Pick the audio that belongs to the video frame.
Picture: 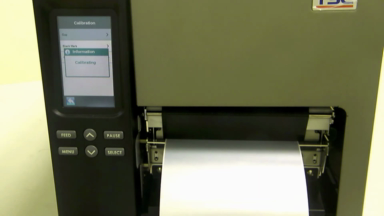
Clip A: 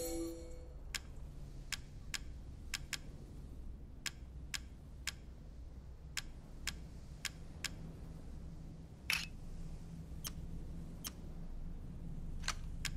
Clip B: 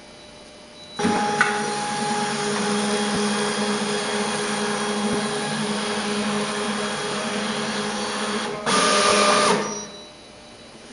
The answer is B